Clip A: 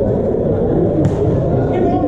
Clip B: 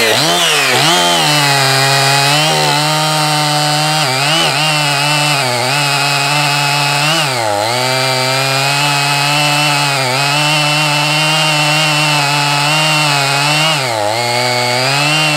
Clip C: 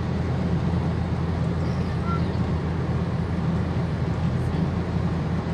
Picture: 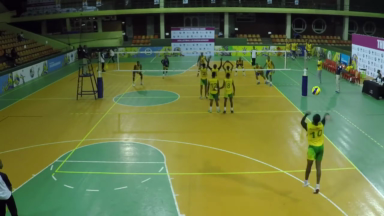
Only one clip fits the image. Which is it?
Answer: A